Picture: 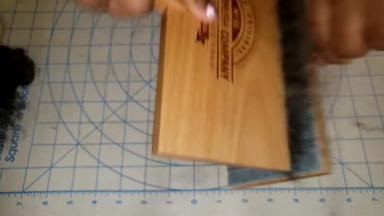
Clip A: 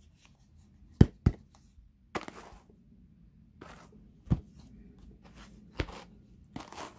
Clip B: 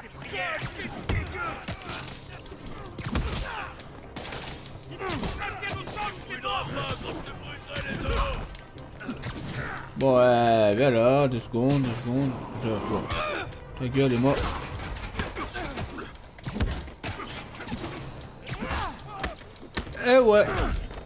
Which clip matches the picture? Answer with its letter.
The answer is A